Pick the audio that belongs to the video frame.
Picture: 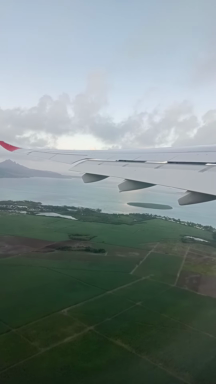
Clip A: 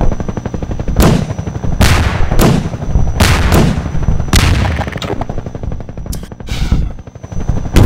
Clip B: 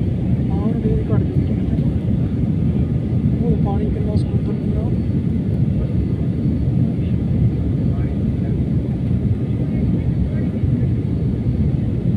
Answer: B